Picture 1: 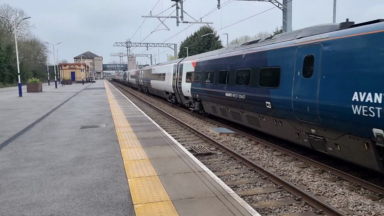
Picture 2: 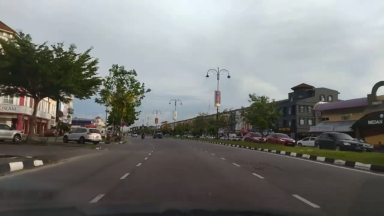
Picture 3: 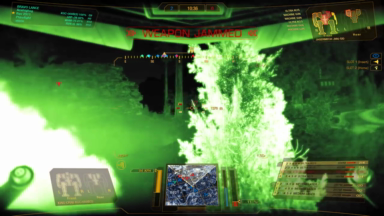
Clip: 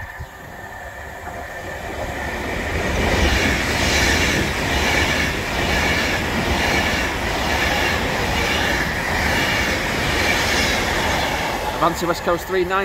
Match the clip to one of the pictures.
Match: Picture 1